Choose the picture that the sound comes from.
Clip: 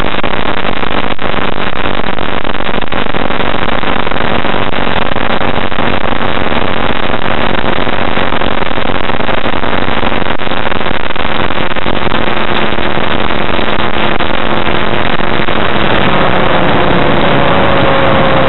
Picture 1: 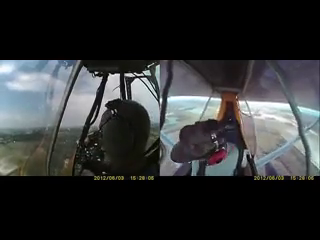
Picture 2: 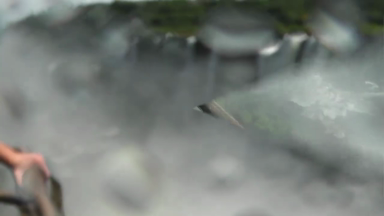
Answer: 1